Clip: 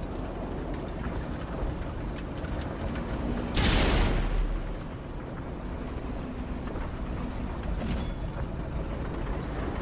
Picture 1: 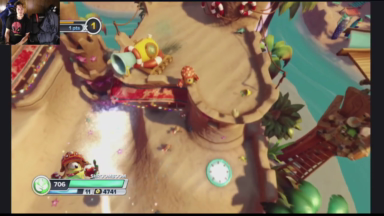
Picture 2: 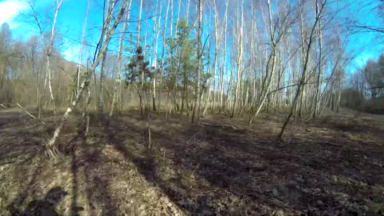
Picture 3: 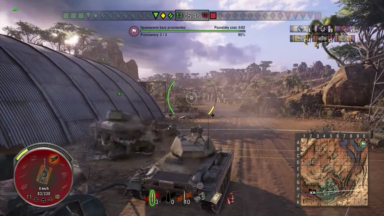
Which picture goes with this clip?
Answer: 3